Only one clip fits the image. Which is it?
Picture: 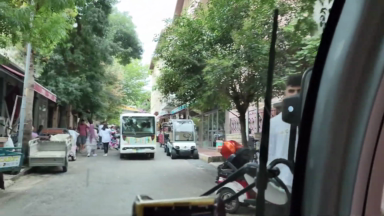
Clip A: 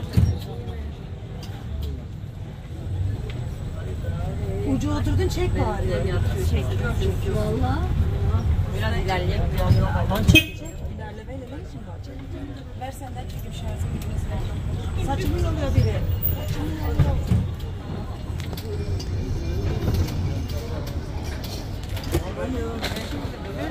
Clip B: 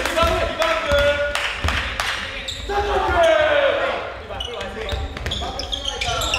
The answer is A